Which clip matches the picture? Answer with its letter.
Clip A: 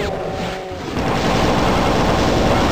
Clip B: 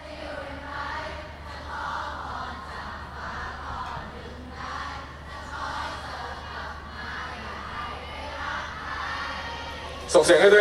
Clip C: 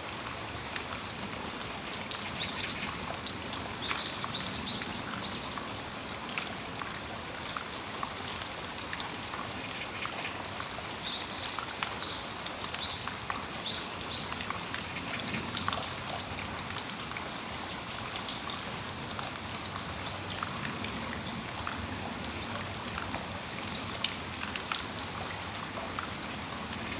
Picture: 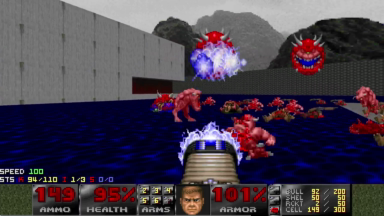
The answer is A